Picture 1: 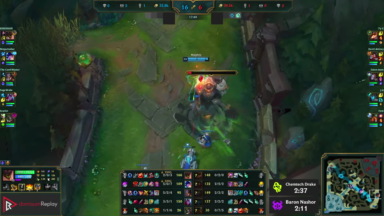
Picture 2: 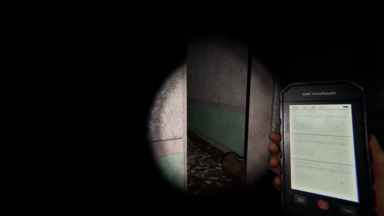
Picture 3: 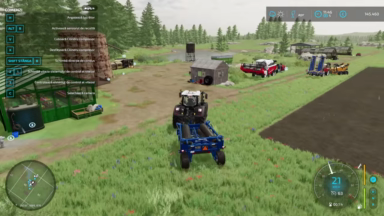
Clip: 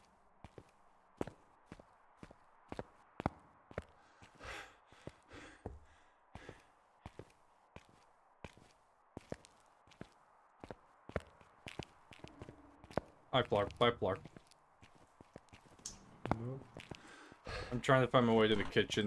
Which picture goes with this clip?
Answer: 2